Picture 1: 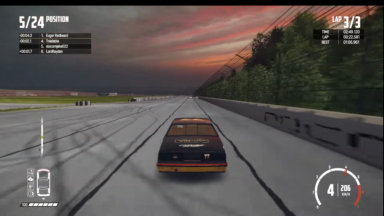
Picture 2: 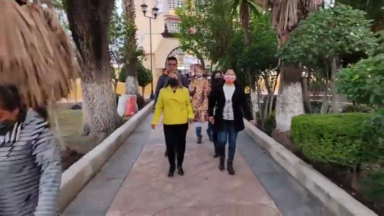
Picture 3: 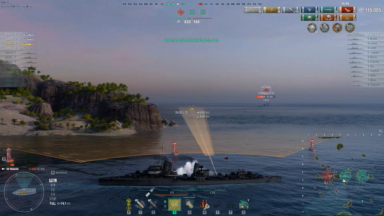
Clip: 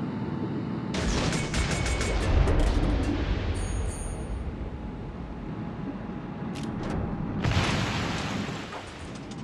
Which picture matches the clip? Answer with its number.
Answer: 3